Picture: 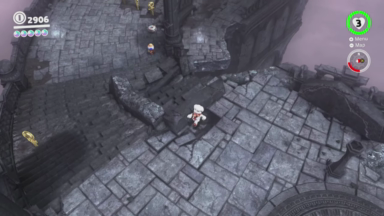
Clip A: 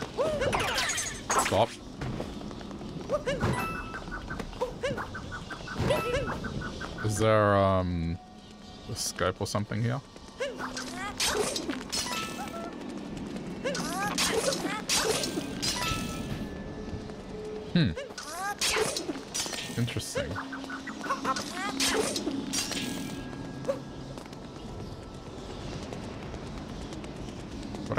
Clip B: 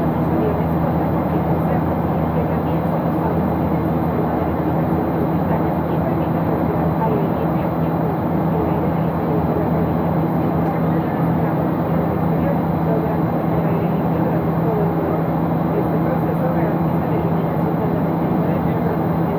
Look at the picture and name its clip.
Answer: A